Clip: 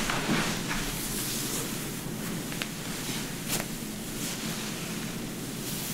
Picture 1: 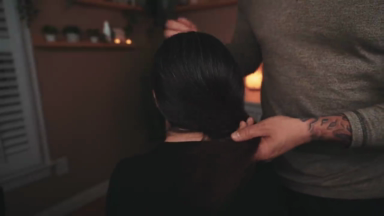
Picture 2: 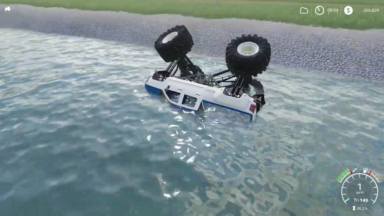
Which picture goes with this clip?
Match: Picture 1